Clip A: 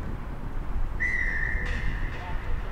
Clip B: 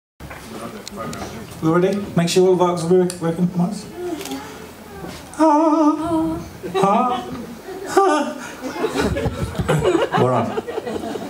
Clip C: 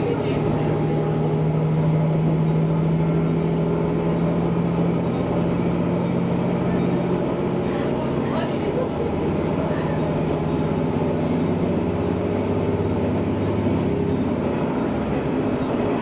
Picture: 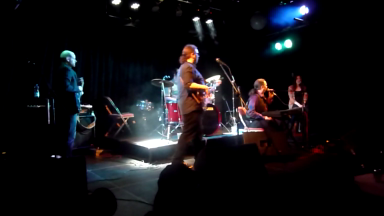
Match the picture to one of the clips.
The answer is B